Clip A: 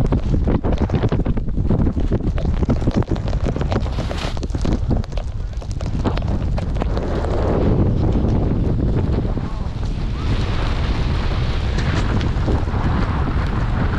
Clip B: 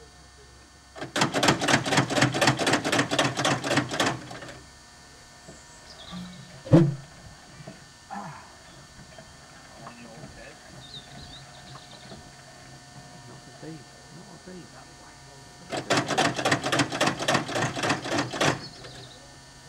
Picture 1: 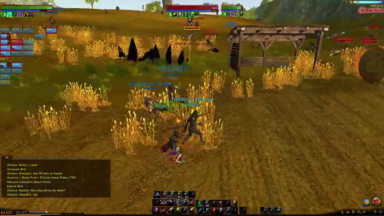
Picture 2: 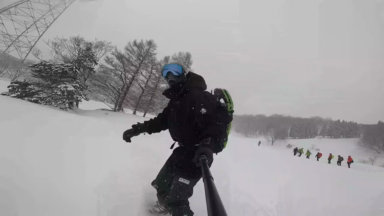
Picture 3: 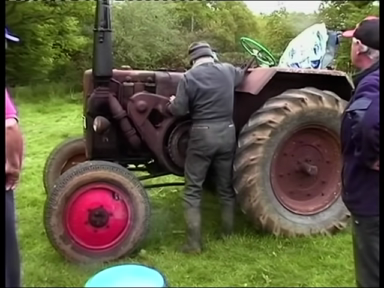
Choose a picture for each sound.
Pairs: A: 2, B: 3